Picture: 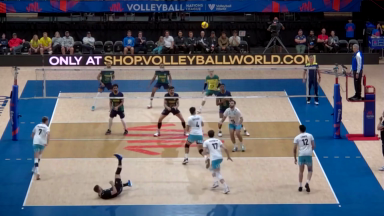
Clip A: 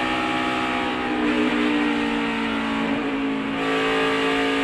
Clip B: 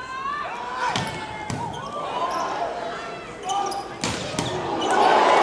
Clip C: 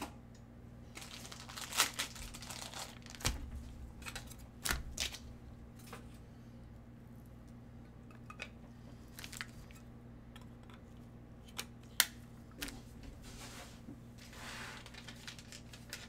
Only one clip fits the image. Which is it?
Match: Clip B